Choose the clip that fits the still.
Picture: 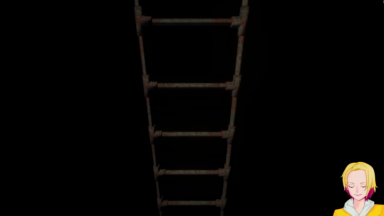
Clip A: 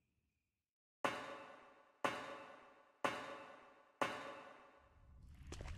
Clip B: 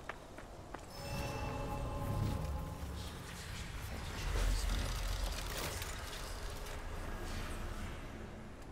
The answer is A